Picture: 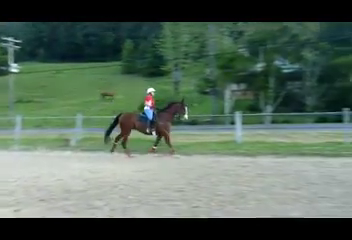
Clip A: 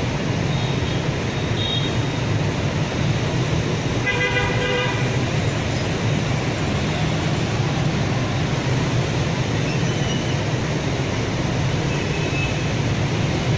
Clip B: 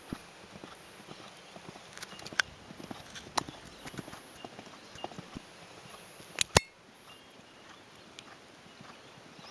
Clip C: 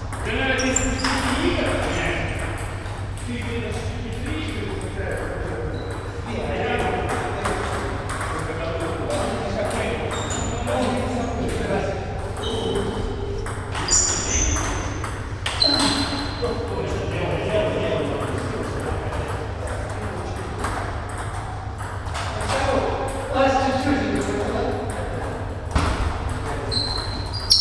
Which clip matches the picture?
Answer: B